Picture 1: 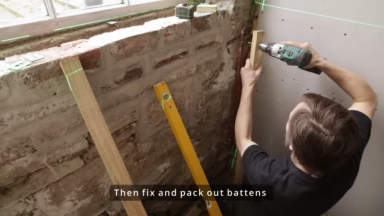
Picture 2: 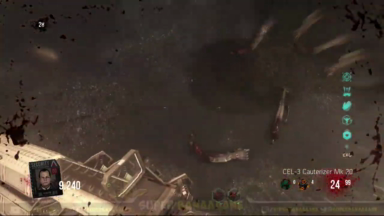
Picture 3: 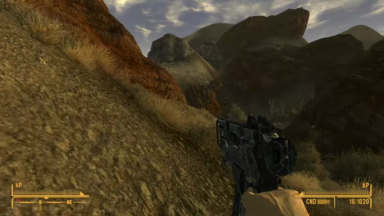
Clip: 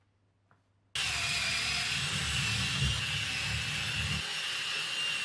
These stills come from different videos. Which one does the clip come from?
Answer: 1